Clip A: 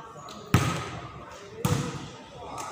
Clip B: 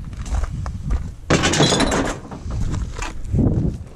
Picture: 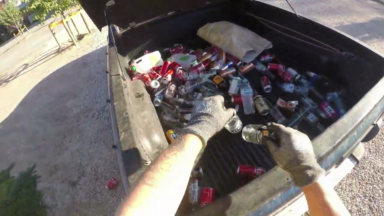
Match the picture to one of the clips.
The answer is B